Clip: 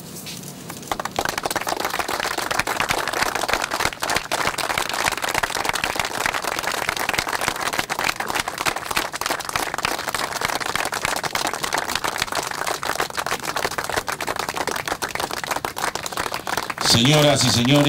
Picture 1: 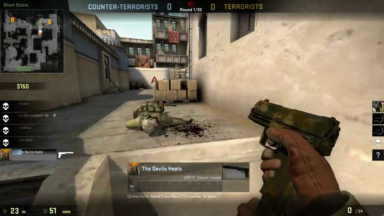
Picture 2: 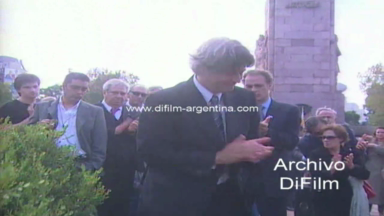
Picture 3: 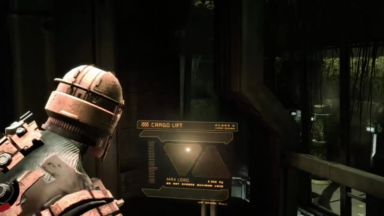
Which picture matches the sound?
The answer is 2